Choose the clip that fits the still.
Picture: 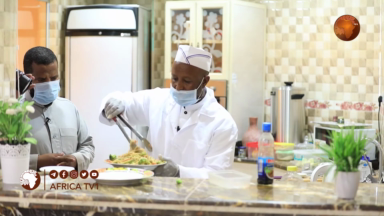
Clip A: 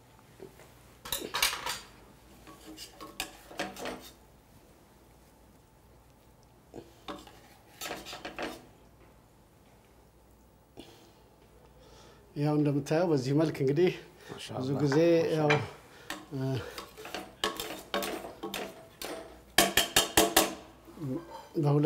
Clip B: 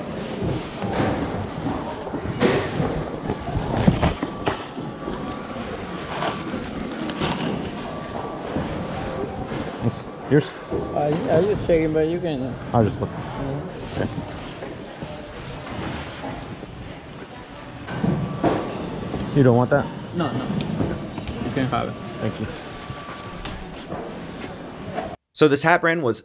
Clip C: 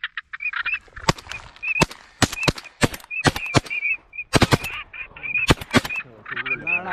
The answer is A